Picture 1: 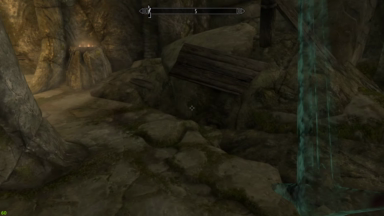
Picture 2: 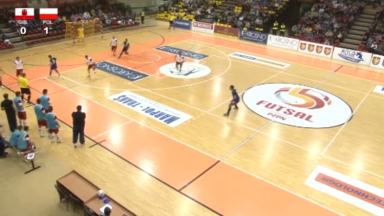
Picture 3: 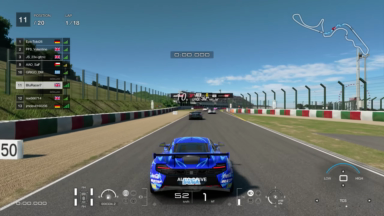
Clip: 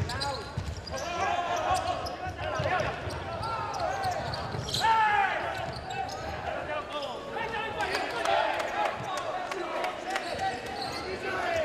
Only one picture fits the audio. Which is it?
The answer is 2